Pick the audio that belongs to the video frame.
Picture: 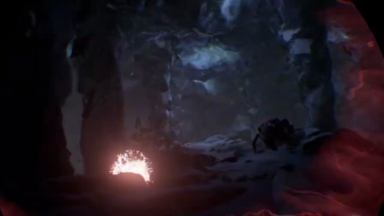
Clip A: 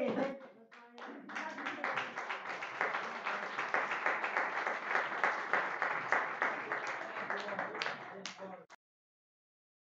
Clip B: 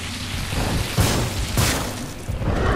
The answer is B